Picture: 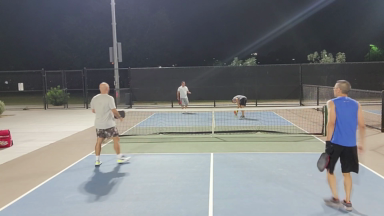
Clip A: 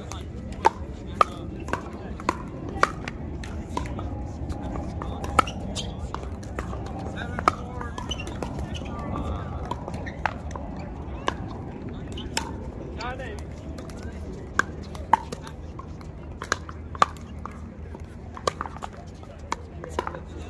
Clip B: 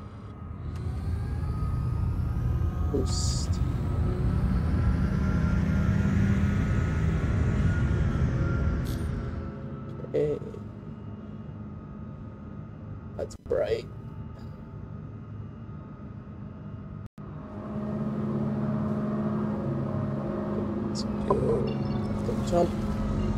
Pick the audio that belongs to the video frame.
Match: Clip A